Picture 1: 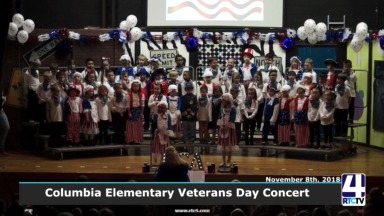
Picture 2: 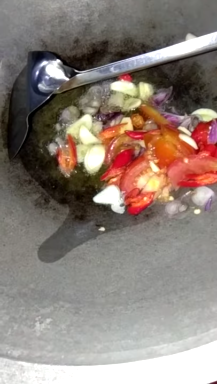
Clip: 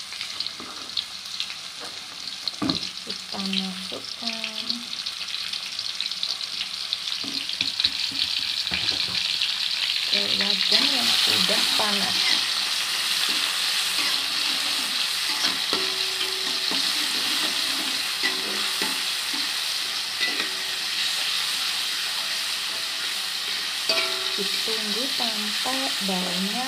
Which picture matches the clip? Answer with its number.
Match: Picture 2